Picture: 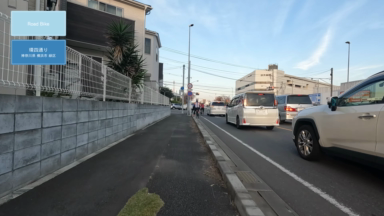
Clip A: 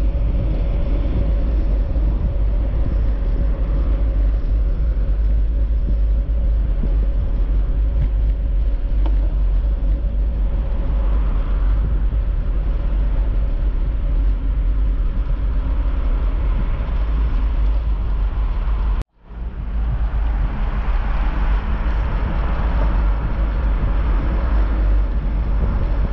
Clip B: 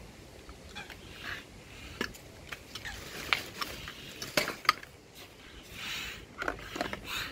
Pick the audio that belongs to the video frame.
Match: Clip A